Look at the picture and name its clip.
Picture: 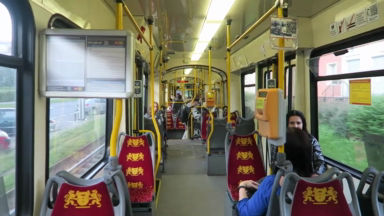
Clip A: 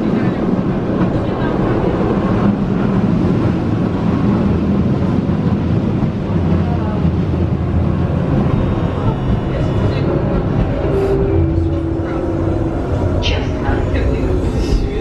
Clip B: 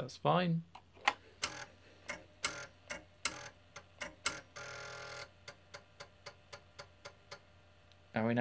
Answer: A